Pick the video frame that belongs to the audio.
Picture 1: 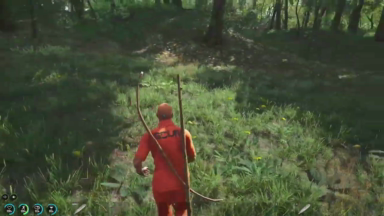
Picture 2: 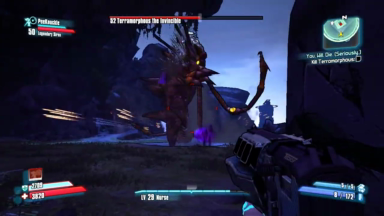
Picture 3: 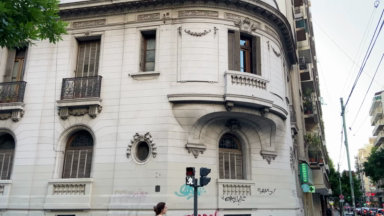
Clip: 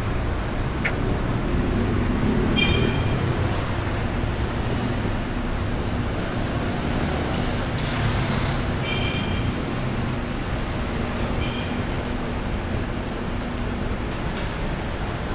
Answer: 3